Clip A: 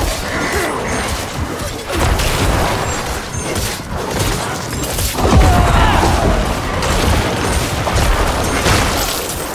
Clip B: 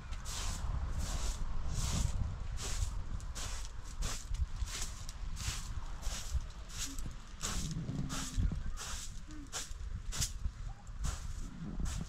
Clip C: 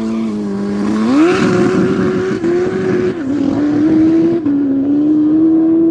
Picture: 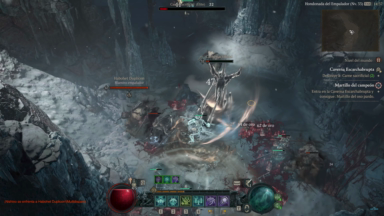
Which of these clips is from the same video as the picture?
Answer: A